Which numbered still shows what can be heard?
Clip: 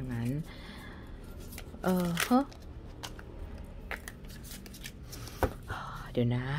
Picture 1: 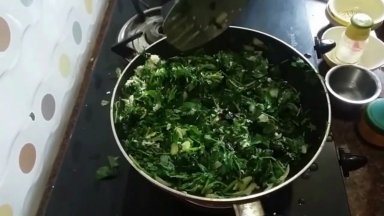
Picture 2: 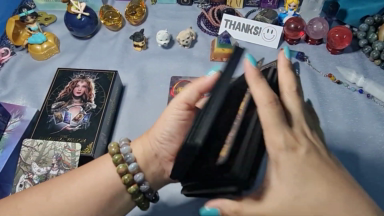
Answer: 2